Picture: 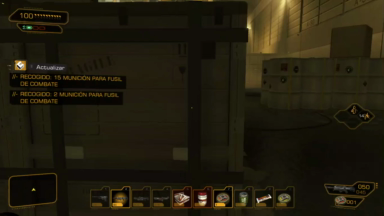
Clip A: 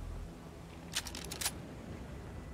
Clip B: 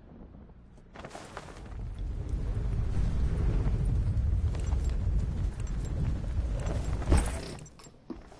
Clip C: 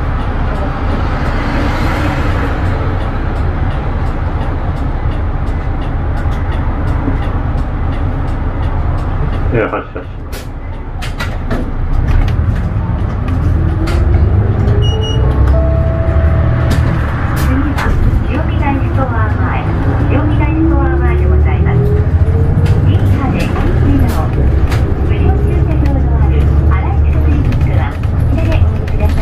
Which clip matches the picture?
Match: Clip A